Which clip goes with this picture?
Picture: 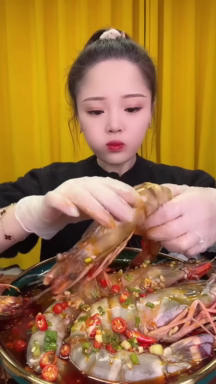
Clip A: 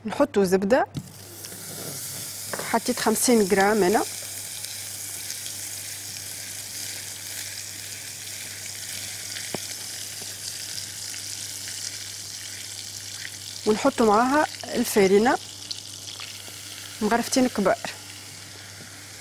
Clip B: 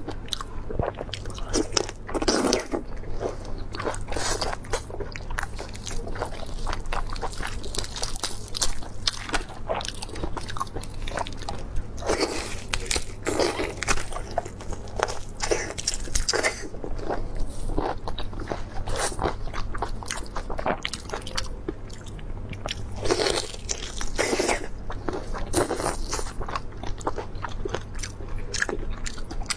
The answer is B